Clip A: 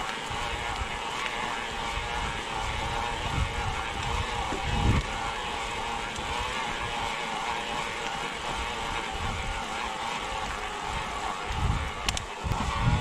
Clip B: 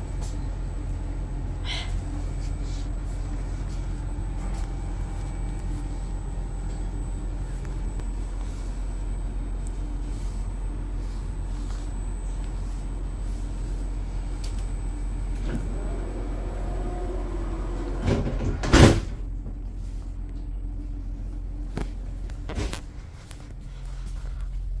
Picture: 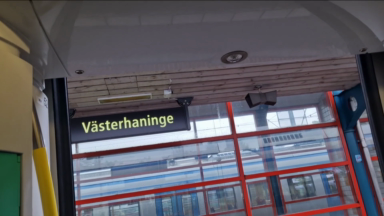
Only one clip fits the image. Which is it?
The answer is B